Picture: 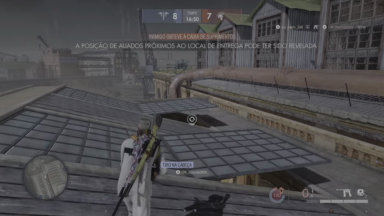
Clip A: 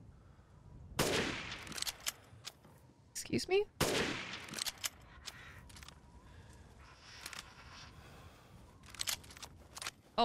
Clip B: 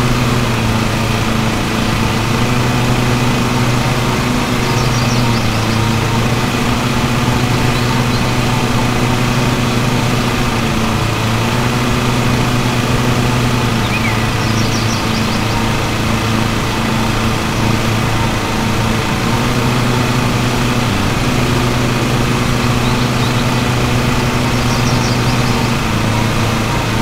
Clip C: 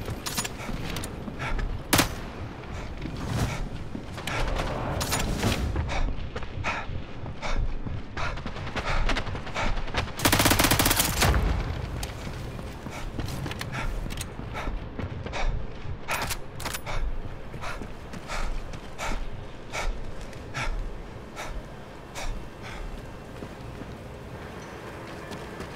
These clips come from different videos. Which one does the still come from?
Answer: C